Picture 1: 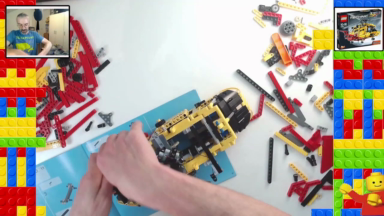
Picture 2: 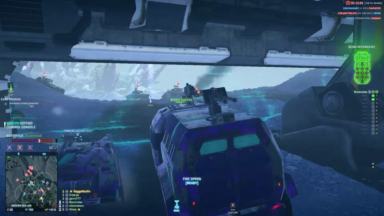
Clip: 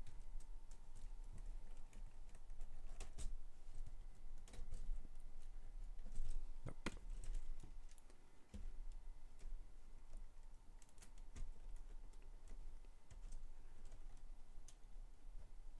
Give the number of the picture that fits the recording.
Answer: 1